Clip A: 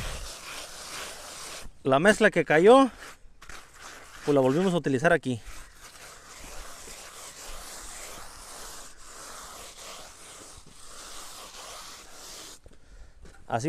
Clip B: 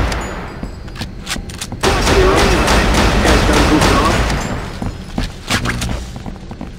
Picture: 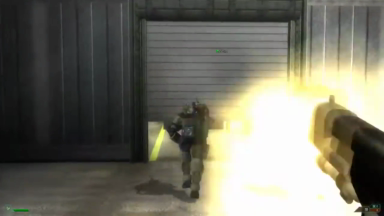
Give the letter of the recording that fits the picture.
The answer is B